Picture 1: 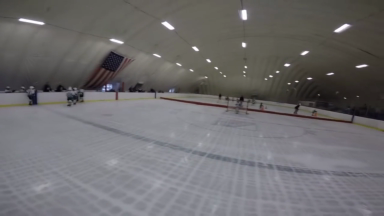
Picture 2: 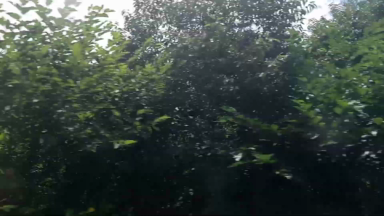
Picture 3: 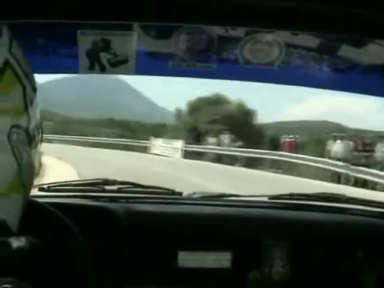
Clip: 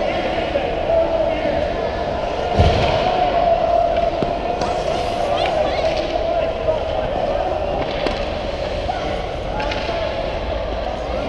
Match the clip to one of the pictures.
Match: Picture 1